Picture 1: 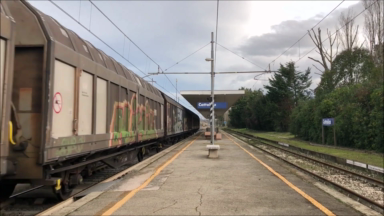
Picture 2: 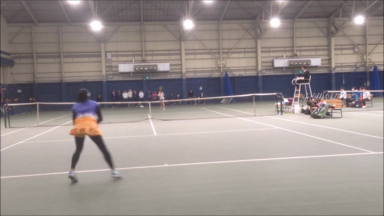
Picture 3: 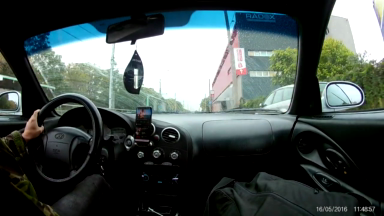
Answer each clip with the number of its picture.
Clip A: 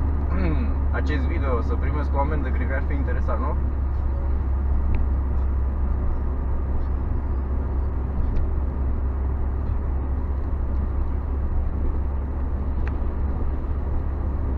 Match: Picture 3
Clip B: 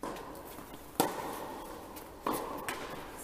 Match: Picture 2